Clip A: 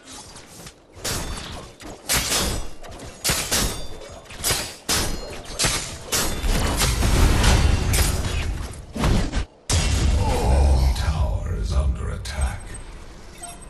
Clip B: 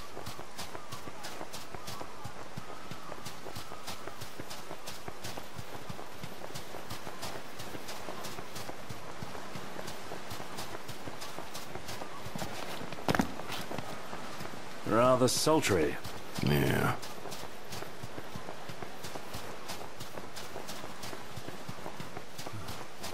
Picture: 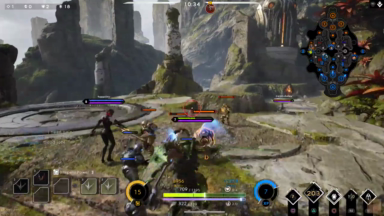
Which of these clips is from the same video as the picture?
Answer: A